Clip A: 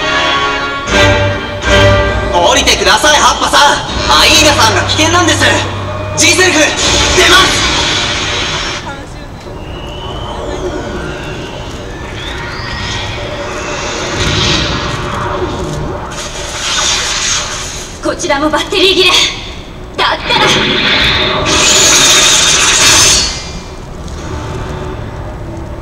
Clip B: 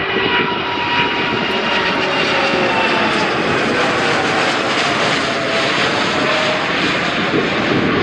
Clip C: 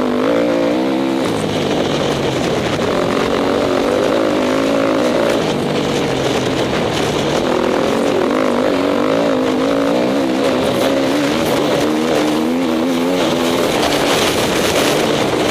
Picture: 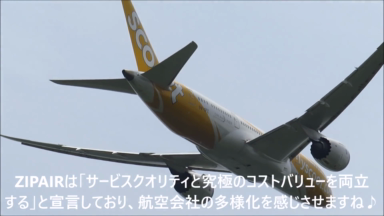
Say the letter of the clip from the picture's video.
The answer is B